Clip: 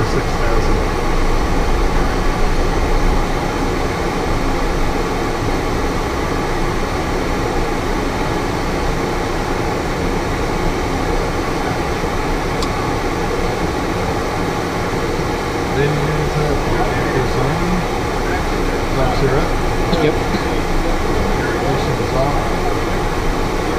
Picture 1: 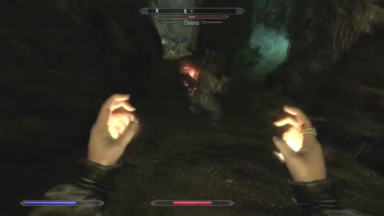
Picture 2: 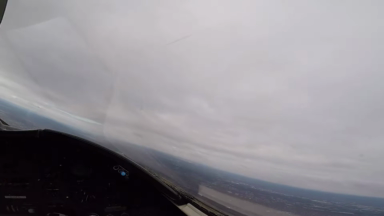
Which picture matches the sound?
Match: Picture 2